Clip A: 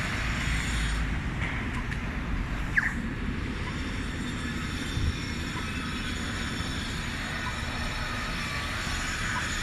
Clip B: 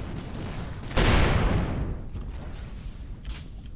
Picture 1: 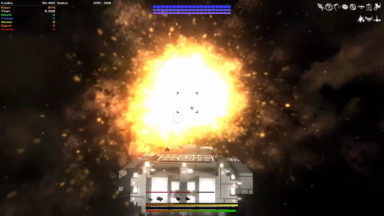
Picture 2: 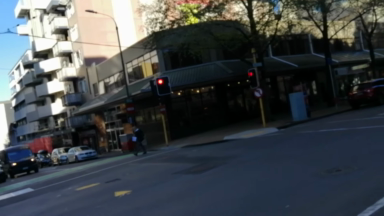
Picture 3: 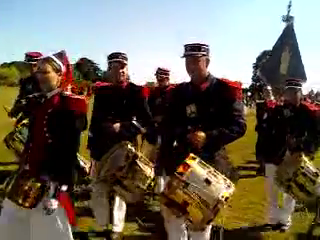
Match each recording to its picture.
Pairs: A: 2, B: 1